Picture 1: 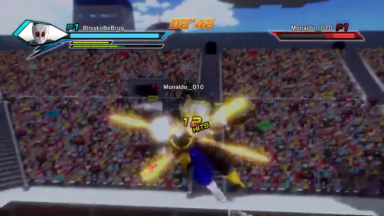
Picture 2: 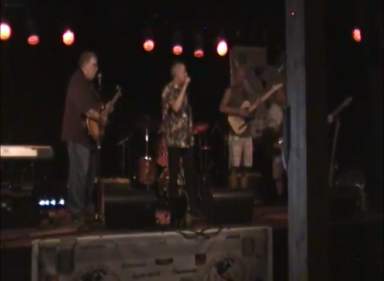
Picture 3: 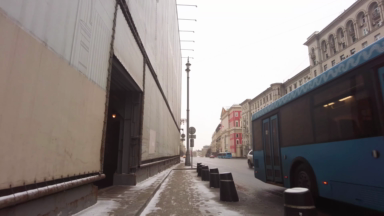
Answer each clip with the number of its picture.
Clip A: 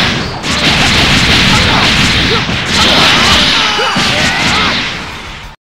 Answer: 1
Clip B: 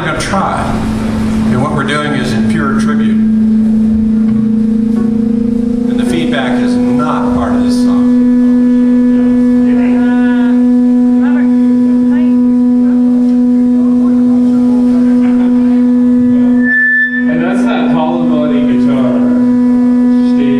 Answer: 2